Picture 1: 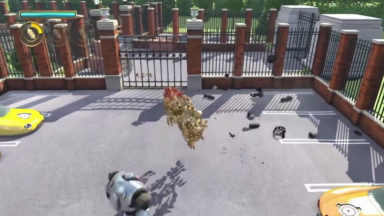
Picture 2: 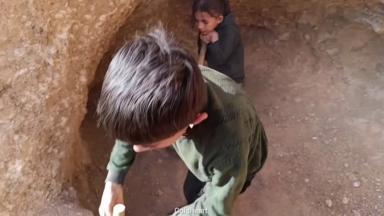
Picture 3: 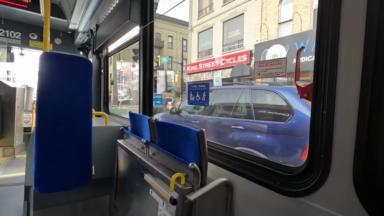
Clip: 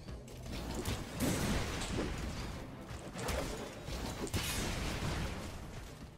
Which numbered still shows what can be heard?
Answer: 1